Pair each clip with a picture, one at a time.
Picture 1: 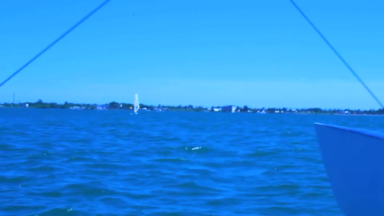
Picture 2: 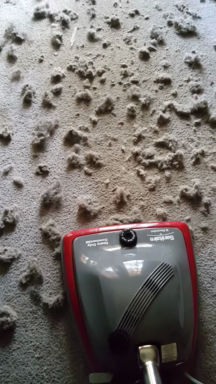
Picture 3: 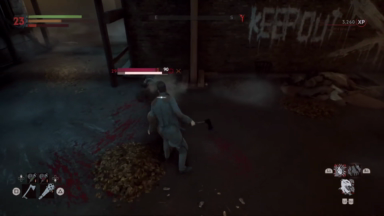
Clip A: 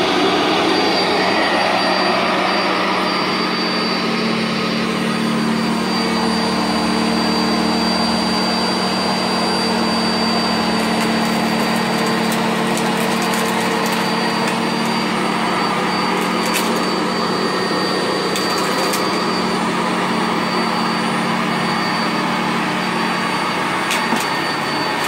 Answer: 2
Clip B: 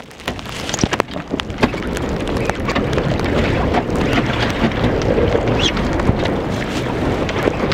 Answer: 1